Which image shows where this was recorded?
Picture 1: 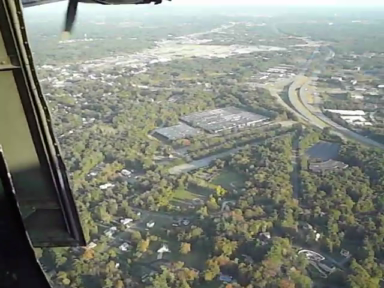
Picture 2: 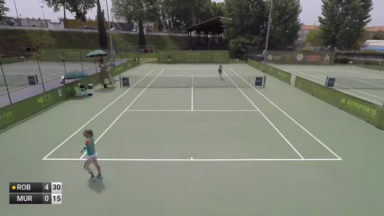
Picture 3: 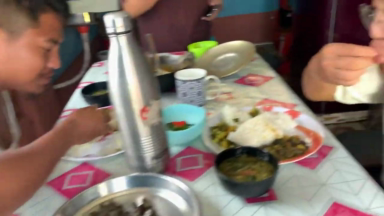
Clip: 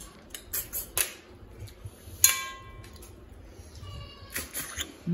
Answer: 3